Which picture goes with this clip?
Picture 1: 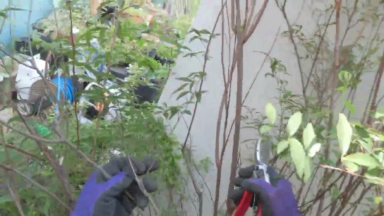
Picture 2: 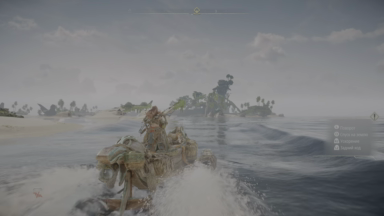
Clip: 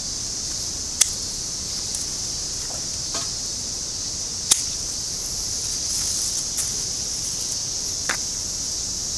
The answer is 1